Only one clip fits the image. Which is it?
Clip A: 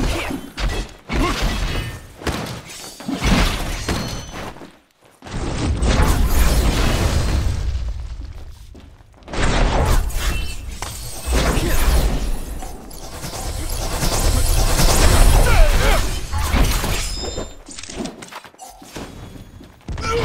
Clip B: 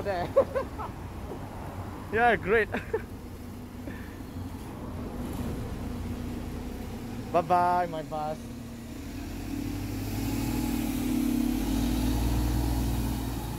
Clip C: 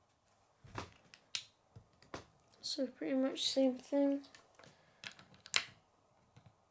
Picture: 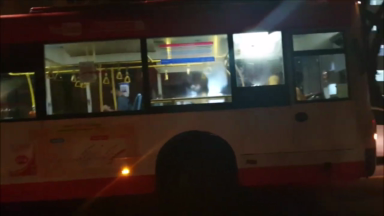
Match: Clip B